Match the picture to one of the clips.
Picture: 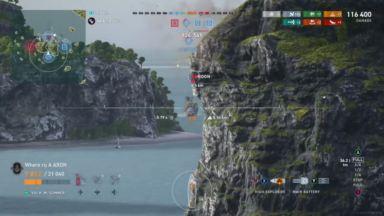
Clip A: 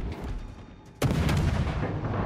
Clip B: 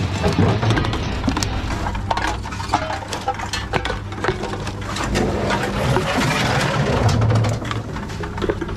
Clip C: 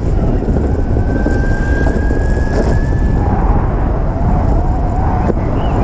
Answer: A